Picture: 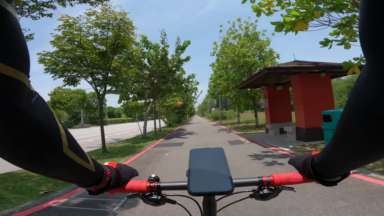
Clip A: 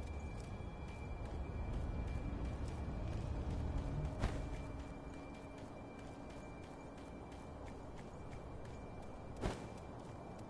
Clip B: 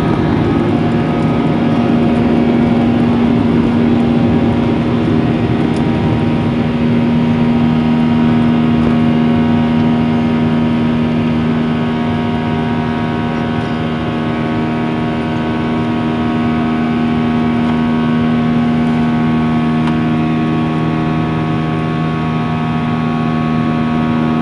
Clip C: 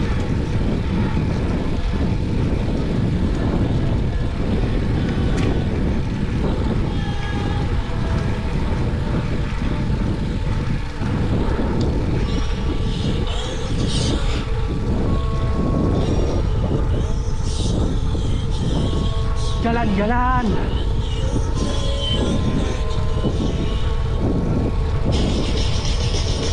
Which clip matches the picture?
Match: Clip C